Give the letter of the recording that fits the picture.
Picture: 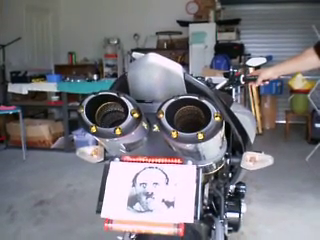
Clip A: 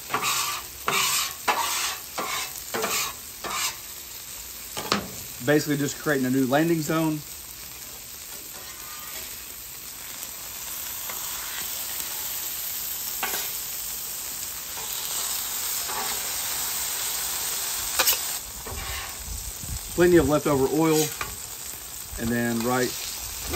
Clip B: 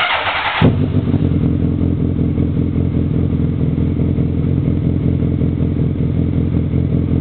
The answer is B